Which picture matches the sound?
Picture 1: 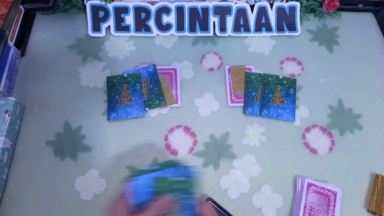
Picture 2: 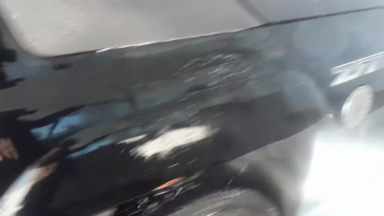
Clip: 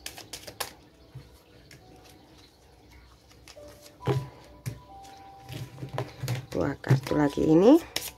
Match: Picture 1